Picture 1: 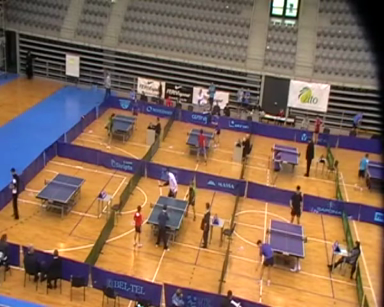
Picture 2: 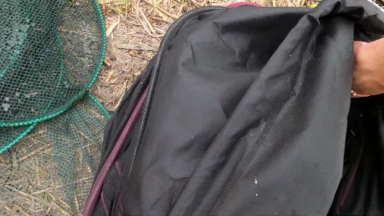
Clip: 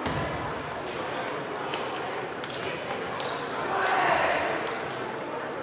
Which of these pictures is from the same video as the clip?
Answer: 1